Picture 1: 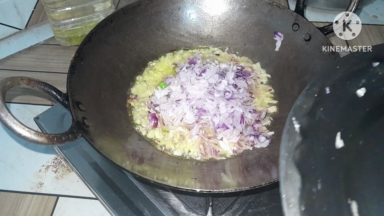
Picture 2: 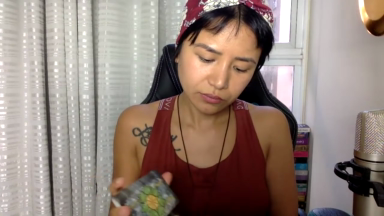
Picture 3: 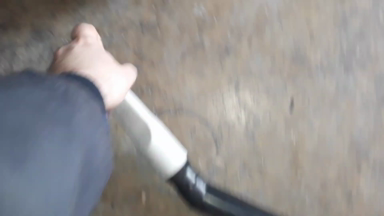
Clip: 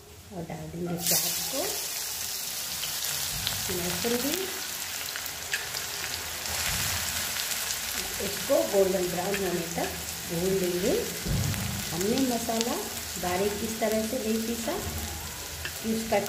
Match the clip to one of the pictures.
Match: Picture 1